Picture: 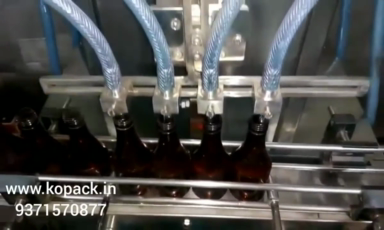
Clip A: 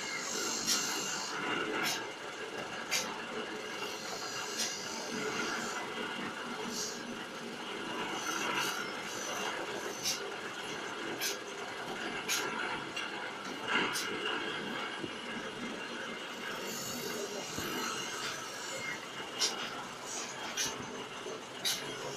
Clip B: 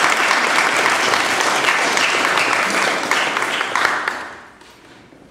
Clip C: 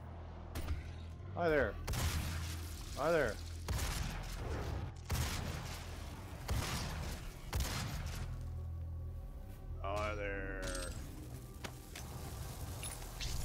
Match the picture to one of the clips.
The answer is A